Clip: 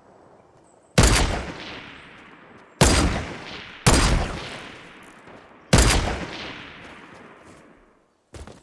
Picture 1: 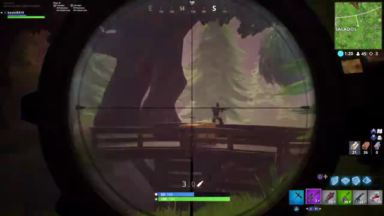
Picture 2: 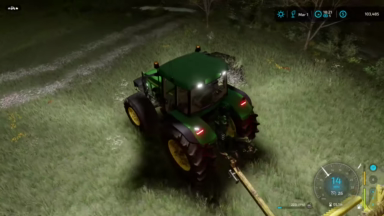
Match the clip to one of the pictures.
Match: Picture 1